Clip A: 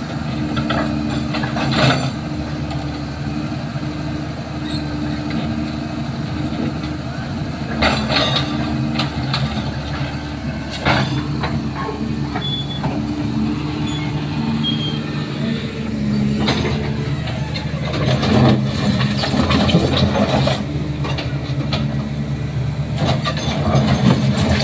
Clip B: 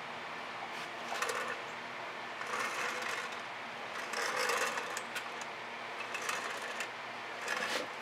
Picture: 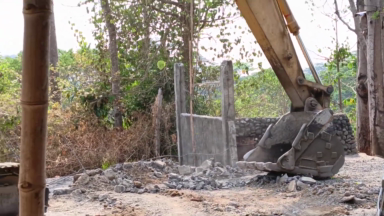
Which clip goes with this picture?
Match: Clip A